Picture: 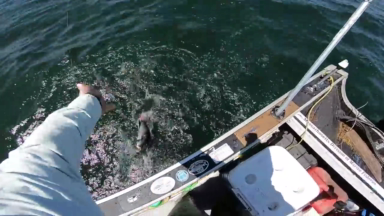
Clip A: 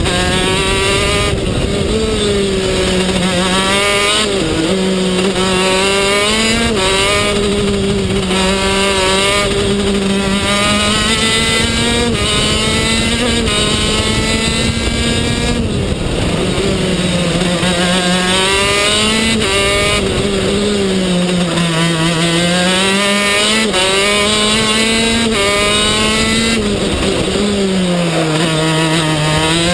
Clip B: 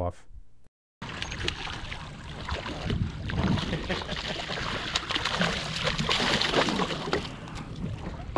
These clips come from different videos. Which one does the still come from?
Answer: B